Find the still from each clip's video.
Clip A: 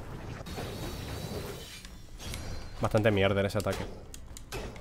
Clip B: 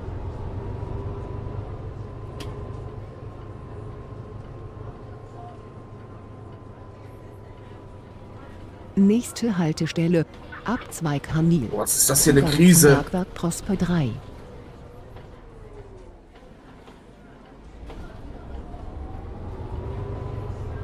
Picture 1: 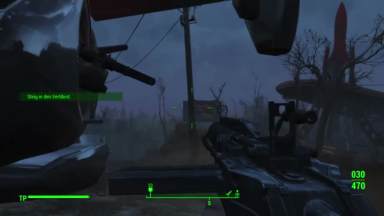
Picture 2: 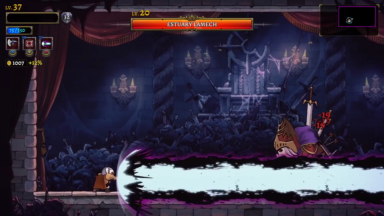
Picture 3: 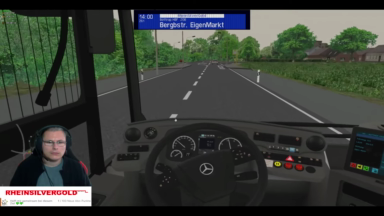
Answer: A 2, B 3